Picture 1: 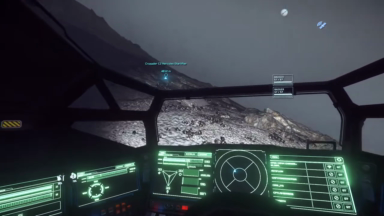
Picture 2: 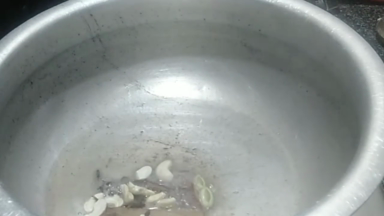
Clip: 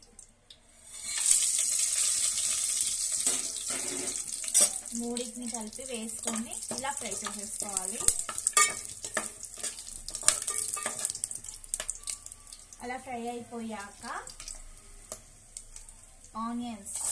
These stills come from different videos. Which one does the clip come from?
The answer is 2